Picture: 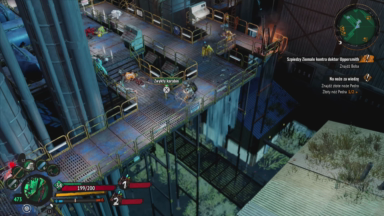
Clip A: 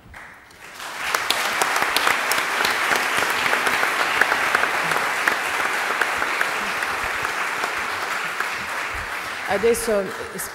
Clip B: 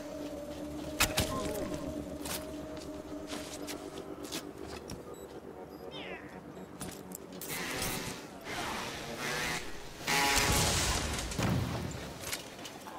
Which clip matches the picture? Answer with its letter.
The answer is B